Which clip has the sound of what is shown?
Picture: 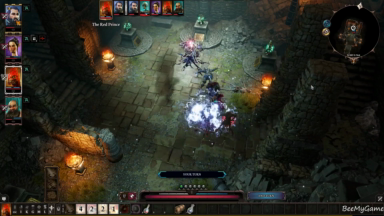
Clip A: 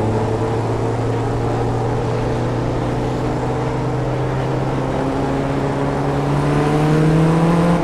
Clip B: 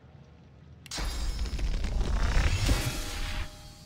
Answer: B